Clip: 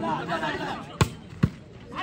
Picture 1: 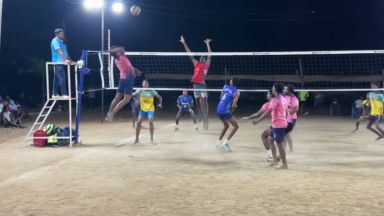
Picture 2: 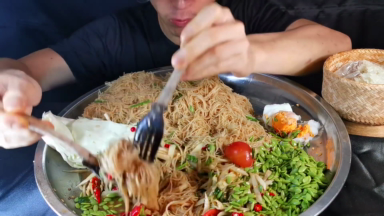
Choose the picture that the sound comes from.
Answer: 1